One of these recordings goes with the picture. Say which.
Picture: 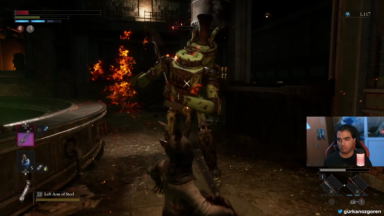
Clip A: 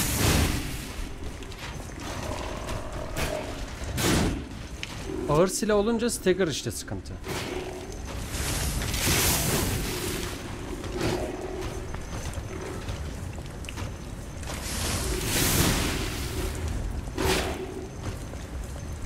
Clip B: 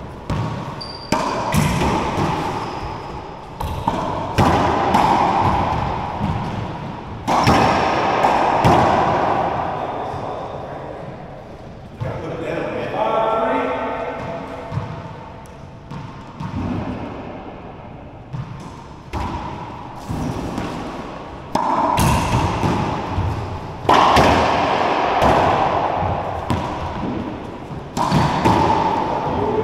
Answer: A